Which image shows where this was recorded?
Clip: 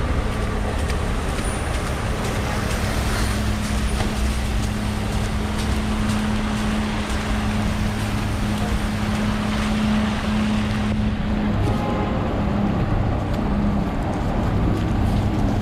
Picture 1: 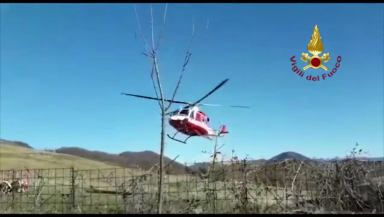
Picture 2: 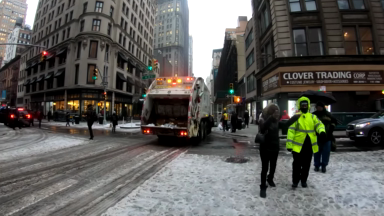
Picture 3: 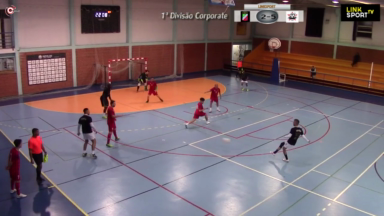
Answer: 2